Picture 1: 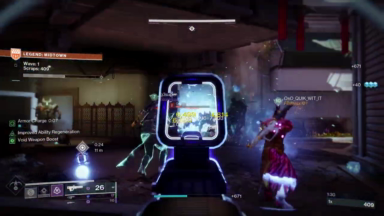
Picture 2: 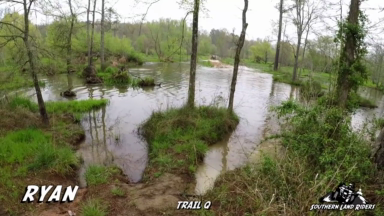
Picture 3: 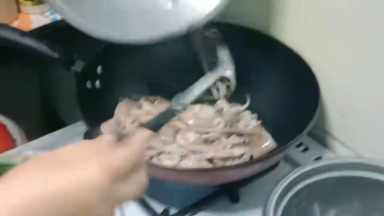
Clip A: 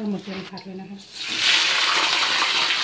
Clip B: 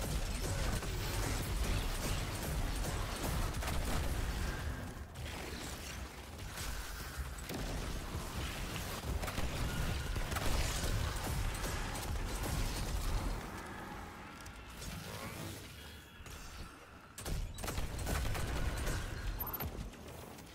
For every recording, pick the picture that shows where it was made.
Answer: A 3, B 1